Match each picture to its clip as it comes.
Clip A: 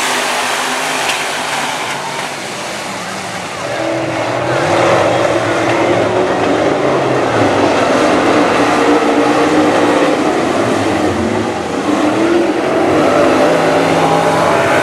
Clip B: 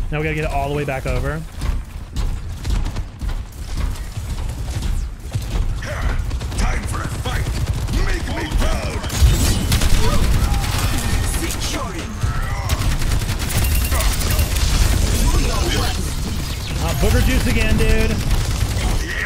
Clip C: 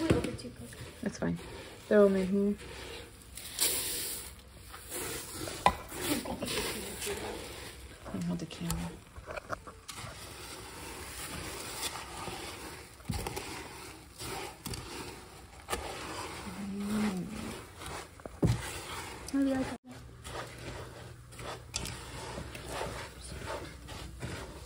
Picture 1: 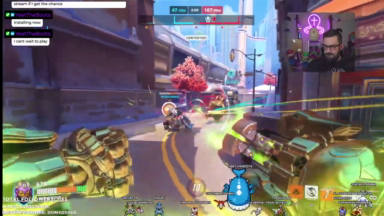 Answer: B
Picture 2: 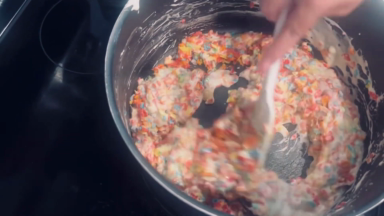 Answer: C